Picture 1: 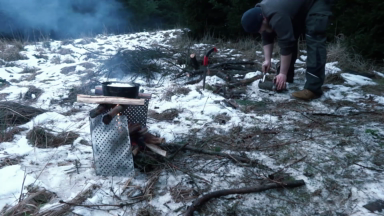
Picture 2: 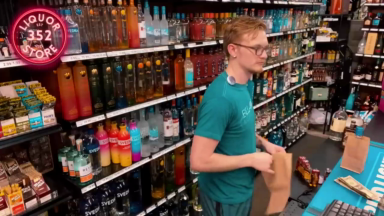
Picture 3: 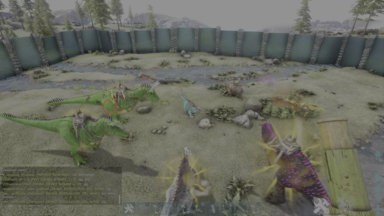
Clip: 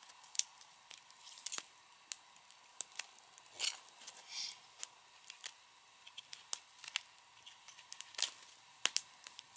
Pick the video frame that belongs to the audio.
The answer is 1